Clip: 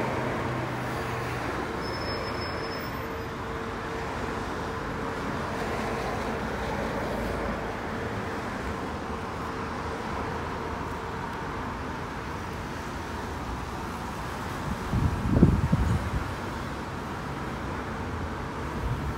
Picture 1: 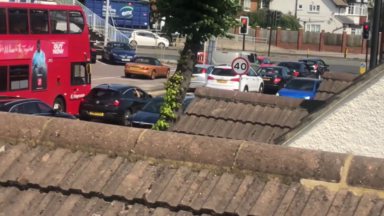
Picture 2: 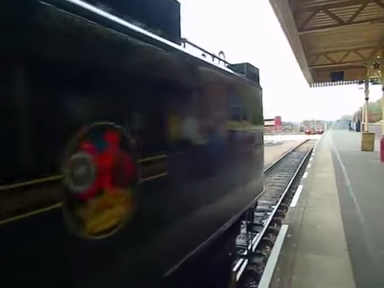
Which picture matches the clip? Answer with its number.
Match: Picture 1